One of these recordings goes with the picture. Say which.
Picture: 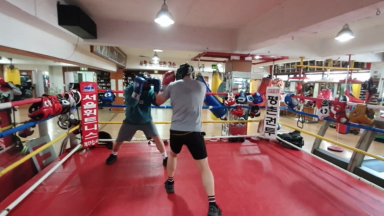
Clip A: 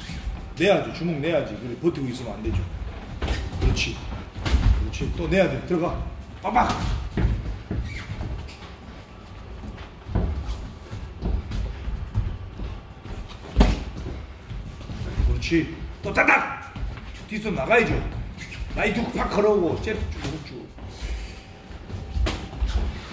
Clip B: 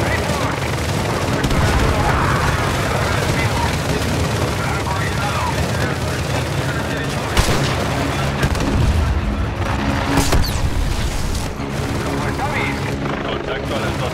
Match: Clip A